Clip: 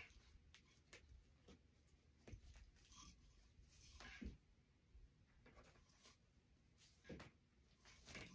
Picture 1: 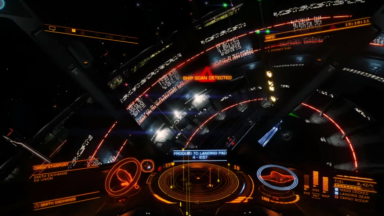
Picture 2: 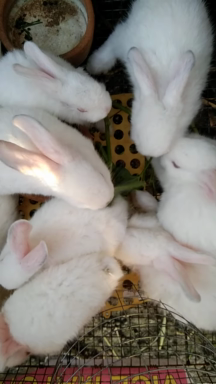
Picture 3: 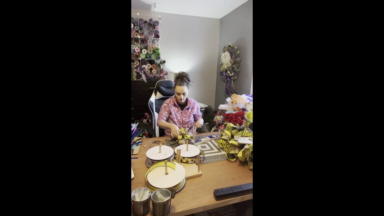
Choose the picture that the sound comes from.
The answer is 3